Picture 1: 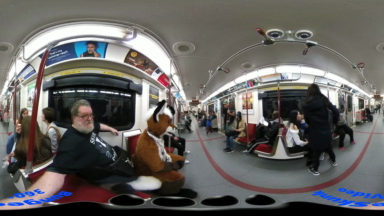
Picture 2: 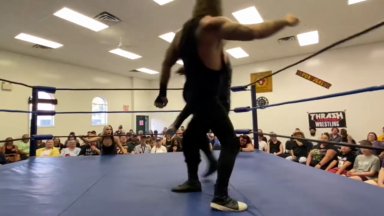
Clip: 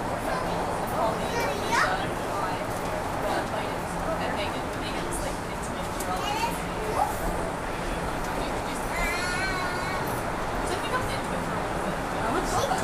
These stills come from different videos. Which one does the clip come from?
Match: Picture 1